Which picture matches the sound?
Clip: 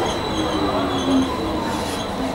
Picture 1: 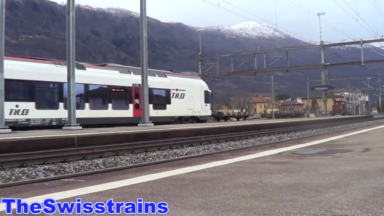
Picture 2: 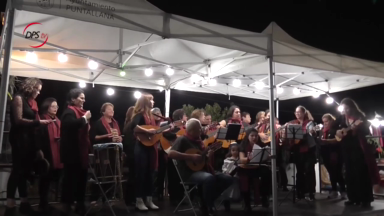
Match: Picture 1